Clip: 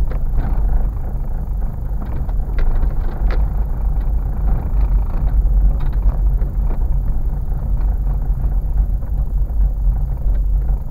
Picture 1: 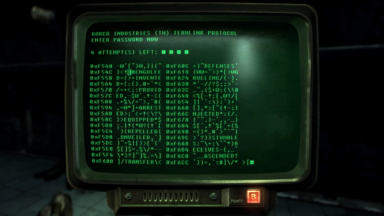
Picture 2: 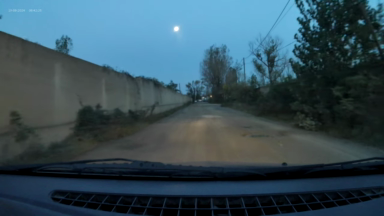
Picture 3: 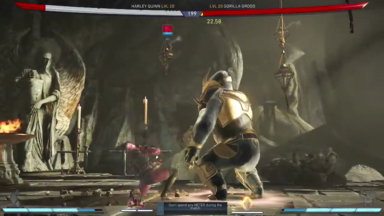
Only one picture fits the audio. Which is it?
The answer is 2